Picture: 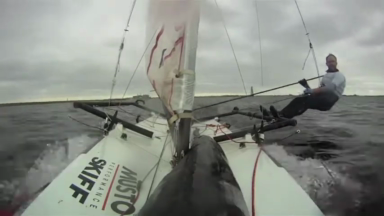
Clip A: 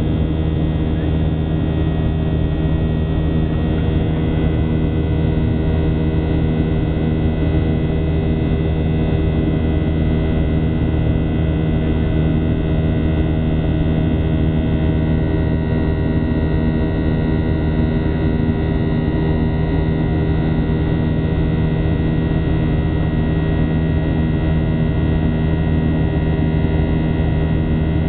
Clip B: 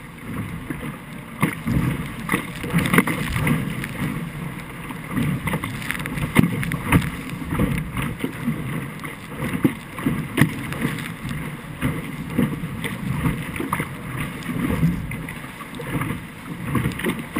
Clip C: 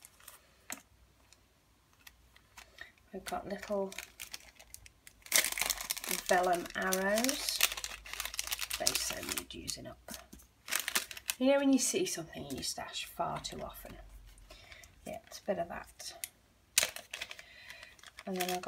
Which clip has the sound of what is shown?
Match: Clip B